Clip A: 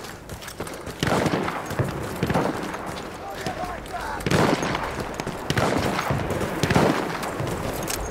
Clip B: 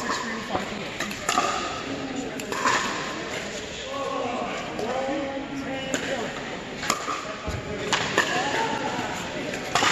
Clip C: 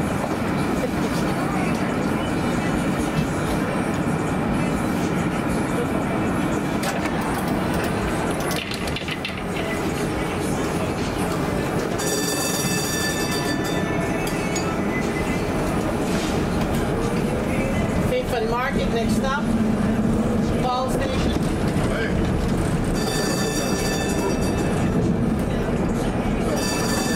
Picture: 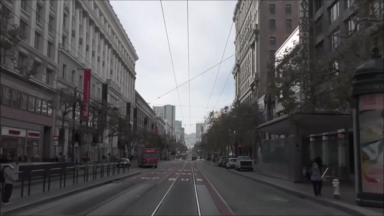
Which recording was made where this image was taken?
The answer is C